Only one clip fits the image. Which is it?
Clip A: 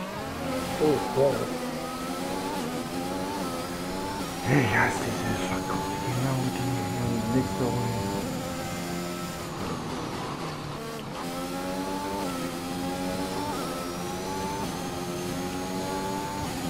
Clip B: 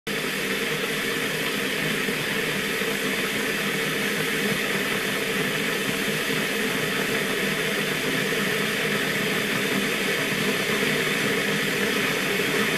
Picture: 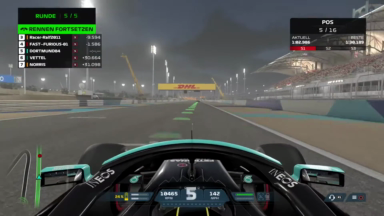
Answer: A